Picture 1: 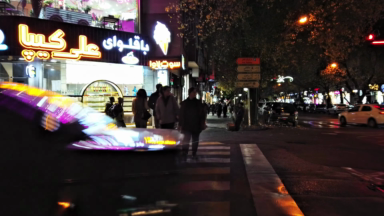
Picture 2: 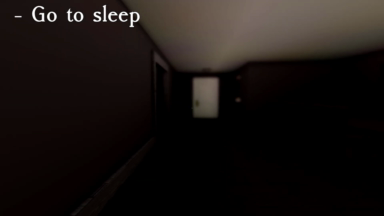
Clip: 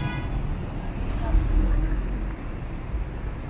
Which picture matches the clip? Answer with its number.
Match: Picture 1